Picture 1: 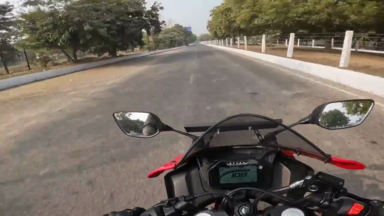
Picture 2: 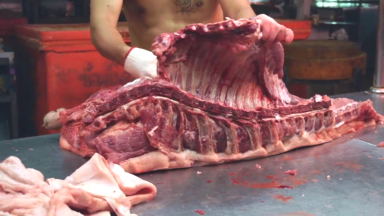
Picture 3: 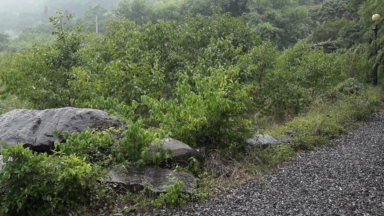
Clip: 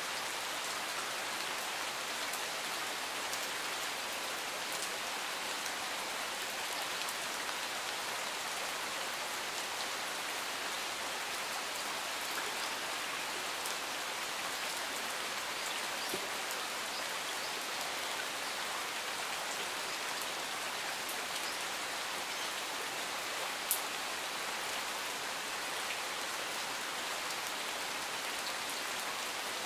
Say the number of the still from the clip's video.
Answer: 3